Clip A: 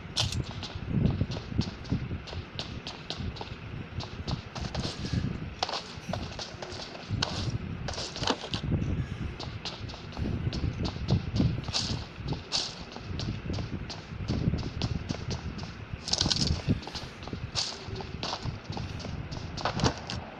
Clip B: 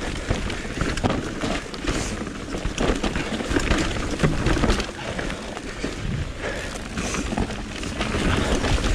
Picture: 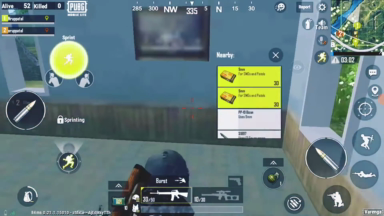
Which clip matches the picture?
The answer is A